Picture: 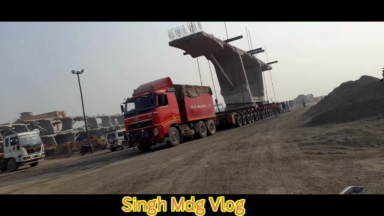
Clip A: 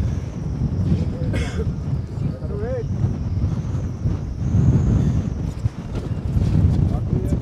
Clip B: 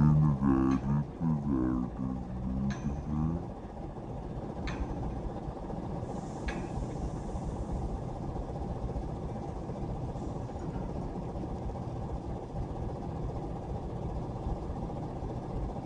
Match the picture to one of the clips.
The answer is B